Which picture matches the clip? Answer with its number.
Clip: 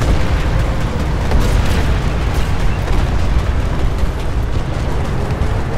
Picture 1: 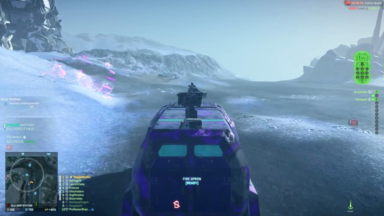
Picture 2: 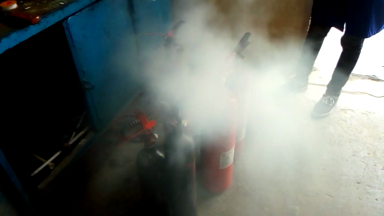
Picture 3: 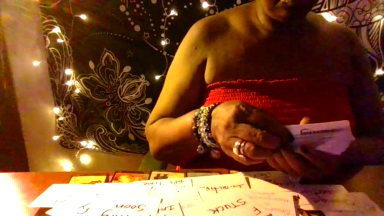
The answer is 1